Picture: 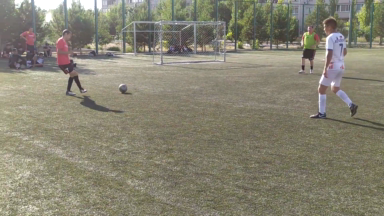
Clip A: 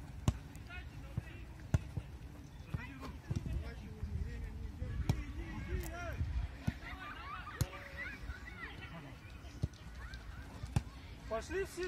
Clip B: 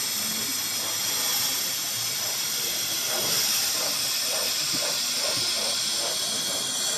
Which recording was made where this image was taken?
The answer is A